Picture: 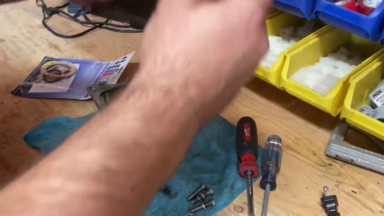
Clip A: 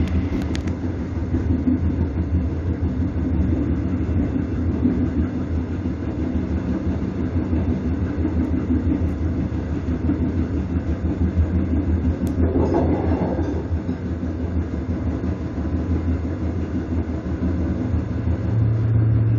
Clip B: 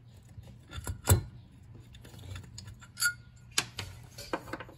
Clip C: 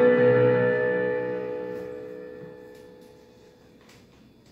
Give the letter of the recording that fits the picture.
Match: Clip B